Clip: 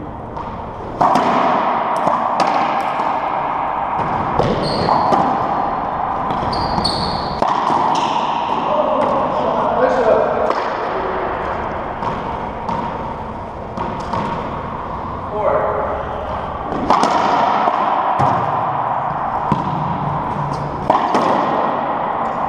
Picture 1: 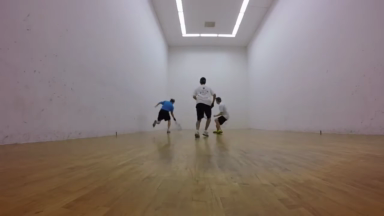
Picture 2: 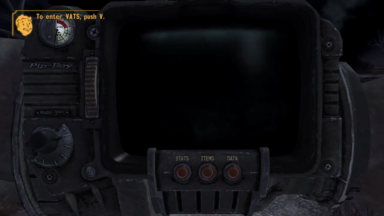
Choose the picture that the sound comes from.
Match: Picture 1